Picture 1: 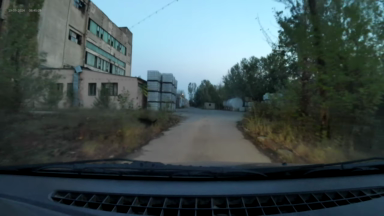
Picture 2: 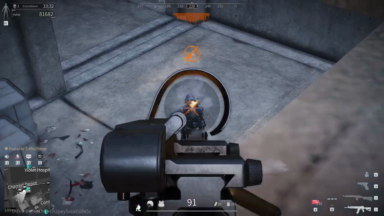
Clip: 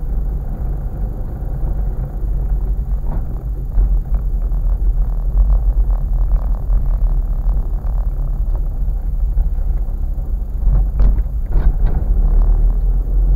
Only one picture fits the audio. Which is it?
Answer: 1